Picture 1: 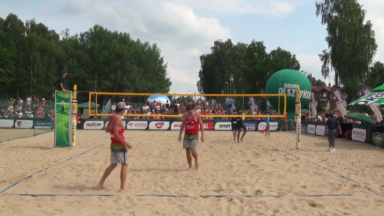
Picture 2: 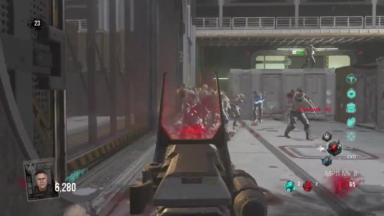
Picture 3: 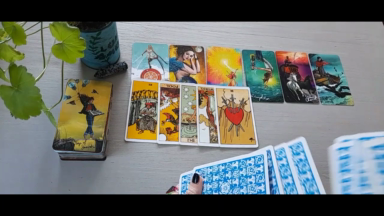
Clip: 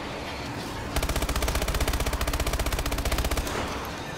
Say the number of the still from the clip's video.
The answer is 2